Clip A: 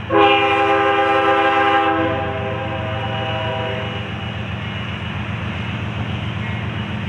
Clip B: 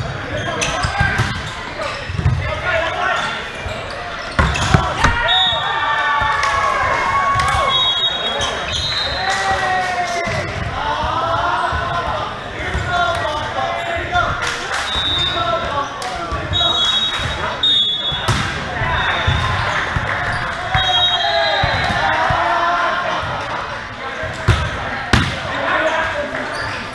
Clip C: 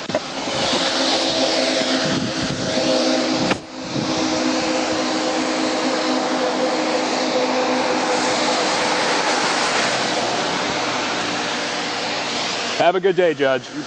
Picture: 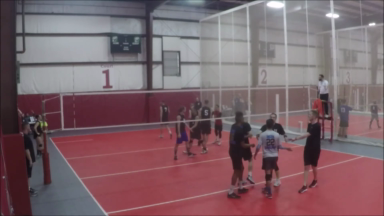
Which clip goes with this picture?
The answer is B